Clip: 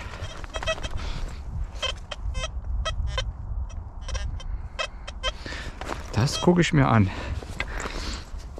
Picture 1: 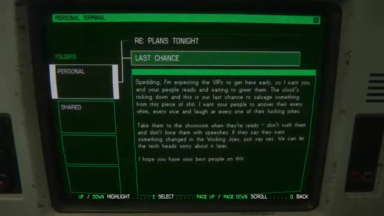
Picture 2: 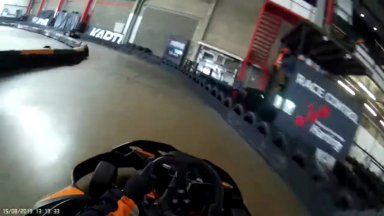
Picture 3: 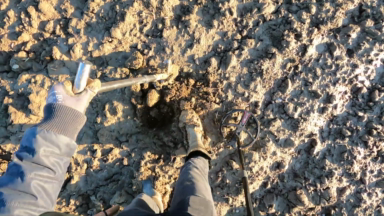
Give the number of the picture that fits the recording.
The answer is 3